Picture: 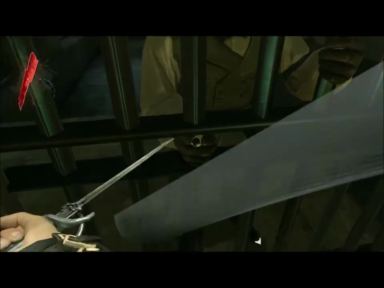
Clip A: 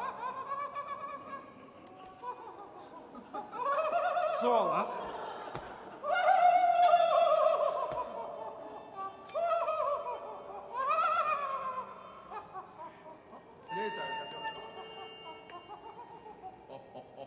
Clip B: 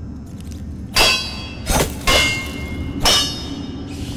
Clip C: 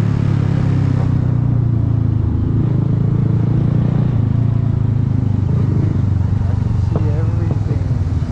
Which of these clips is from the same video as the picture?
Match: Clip B